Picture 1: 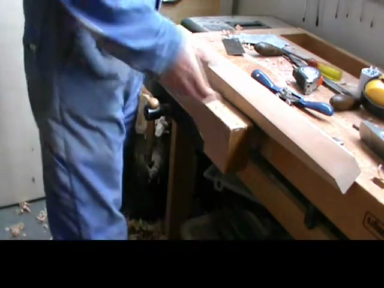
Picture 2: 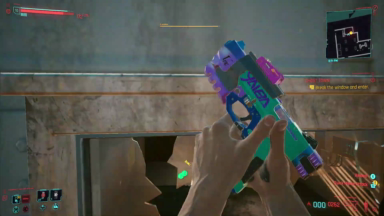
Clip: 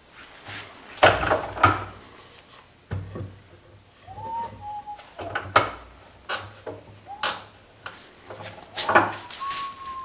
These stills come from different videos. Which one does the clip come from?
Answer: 1